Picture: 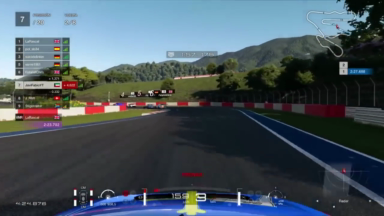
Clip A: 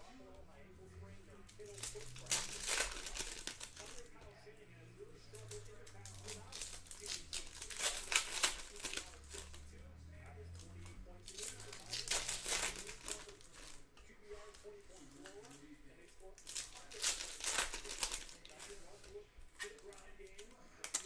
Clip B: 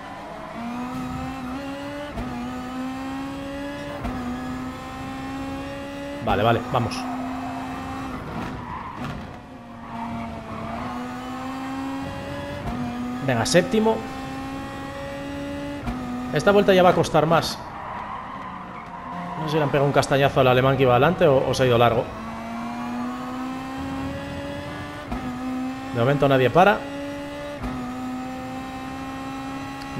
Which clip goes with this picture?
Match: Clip B